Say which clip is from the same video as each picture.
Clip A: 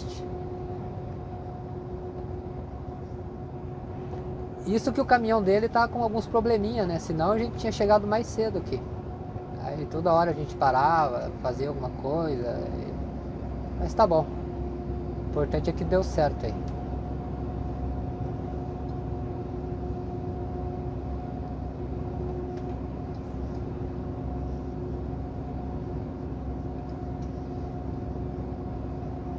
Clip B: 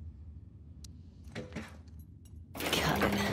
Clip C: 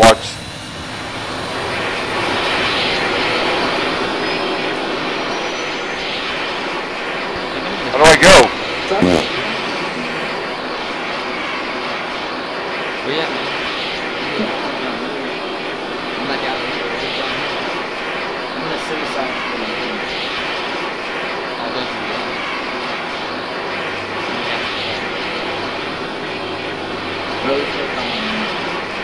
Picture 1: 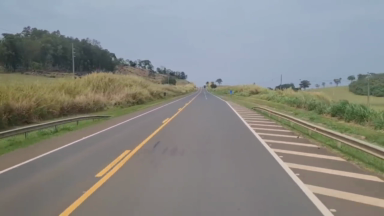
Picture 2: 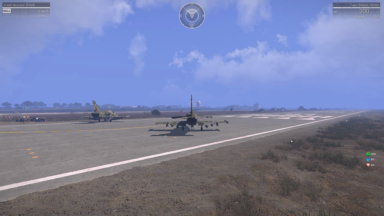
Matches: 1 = A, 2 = C